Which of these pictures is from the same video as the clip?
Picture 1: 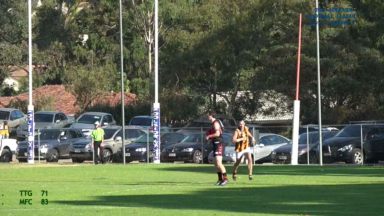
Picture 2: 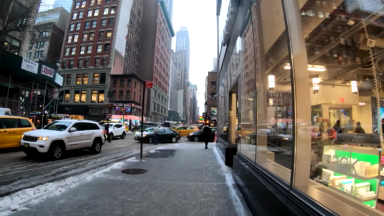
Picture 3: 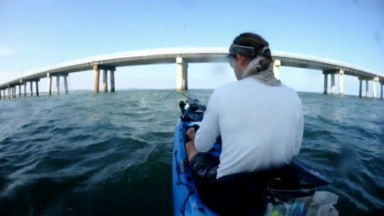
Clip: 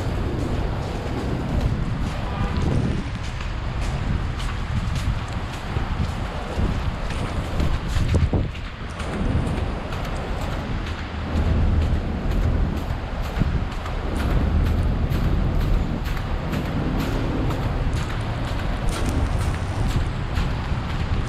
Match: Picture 2